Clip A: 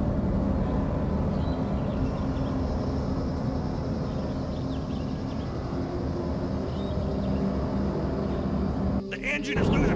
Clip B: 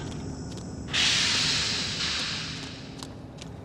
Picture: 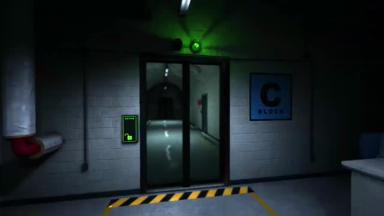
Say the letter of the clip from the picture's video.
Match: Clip B